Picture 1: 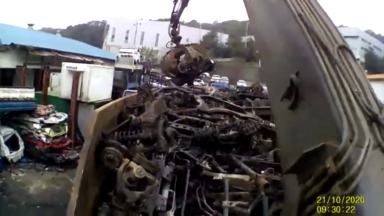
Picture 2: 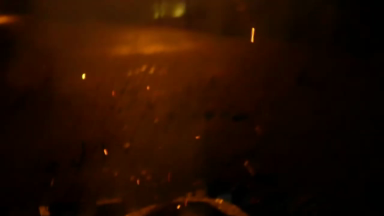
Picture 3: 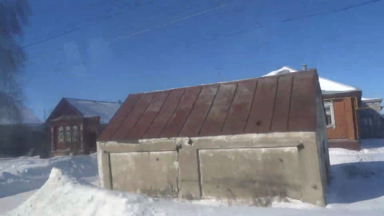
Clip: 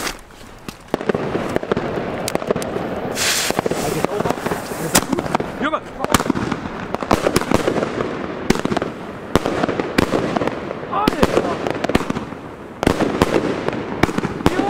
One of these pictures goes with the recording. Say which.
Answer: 2